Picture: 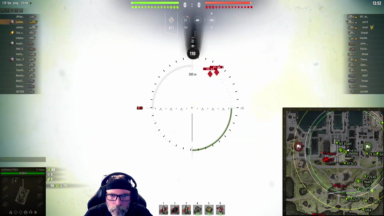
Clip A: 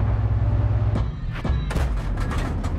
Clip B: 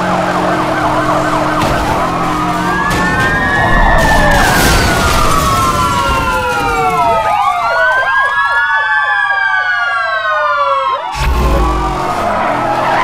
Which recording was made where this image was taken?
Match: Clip A